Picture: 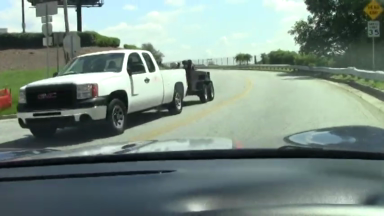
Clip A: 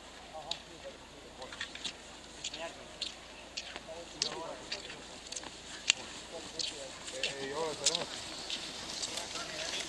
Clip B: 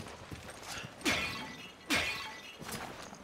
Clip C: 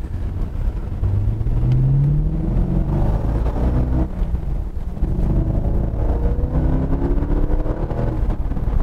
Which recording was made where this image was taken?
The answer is C